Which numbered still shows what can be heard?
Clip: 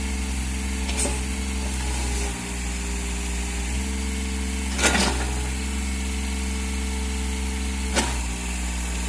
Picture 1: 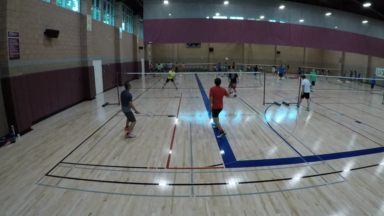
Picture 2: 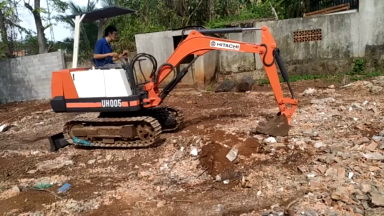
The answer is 2